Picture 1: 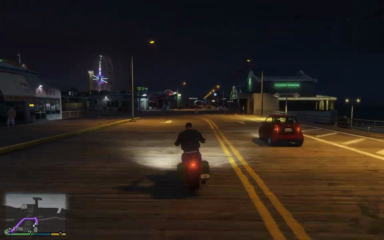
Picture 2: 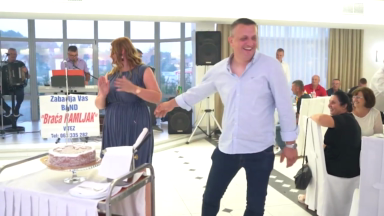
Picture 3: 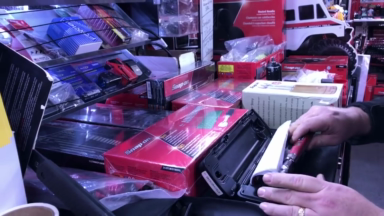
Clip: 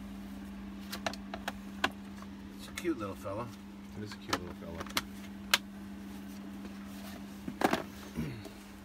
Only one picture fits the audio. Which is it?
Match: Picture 3